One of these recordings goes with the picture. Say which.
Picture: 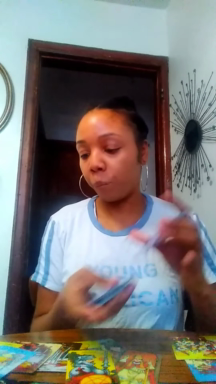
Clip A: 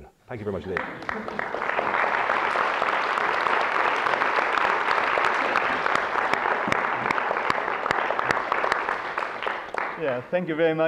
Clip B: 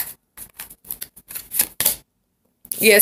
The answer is B